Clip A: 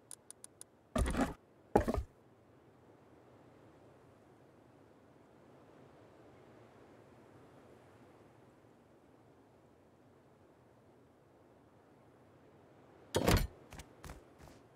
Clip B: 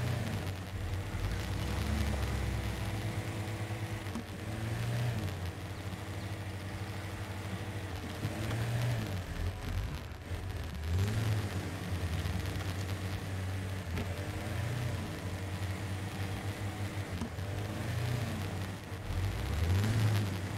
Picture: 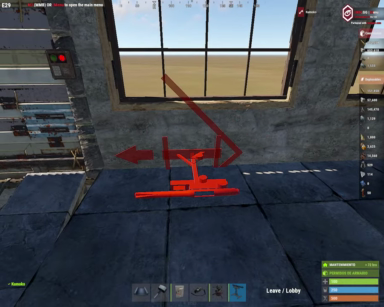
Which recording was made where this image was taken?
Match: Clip A